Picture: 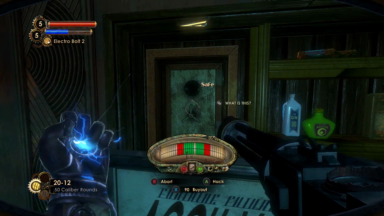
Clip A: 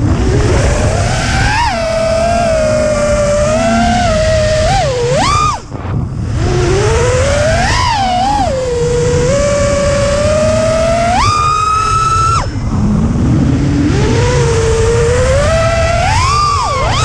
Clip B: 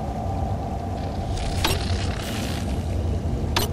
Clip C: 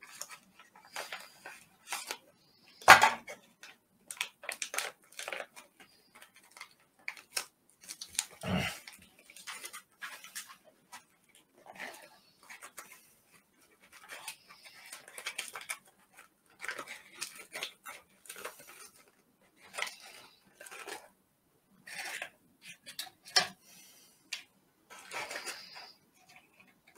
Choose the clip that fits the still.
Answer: B